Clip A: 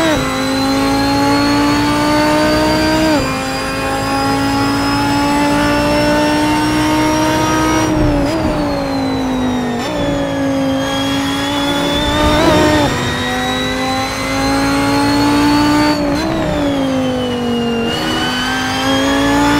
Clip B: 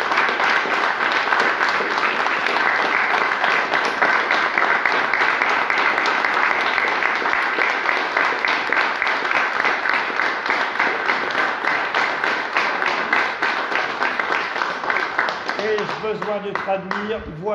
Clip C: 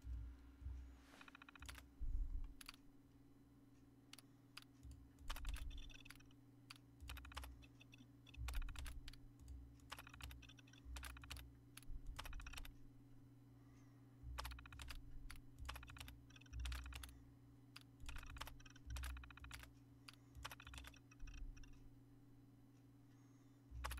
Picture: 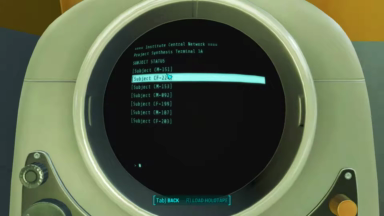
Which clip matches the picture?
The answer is C